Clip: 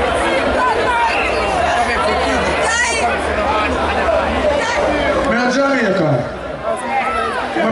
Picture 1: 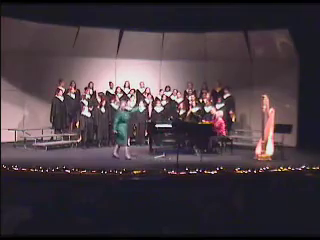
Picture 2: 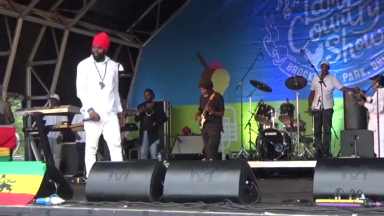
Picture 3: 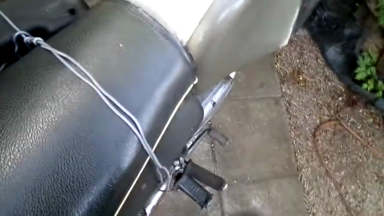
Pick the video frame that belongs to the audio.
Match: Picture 2